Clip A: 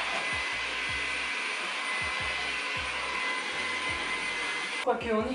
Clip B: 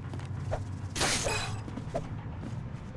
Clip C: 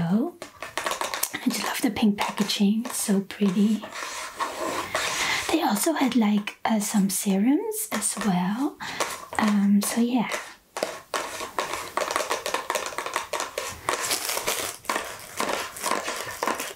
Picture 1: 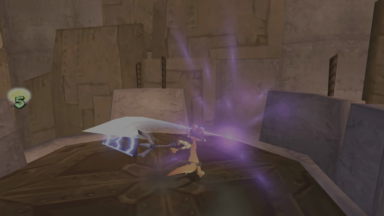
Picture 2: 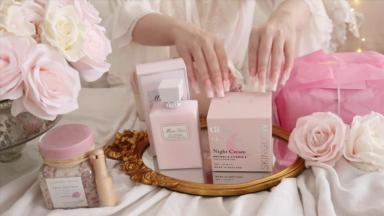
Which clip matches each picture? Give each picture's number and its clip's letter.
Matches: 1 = B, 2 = C